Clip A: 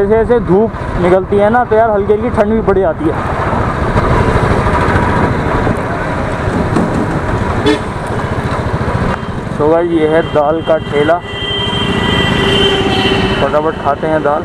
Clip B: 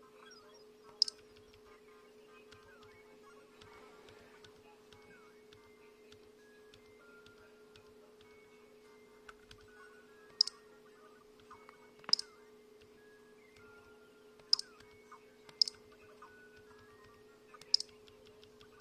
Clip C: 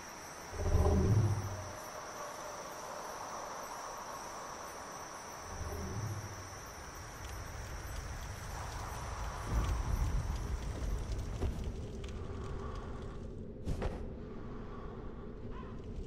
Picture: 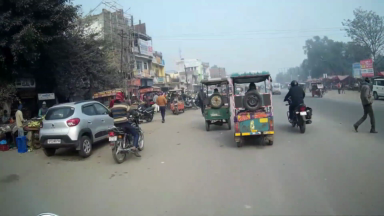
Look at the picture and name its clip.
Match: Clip A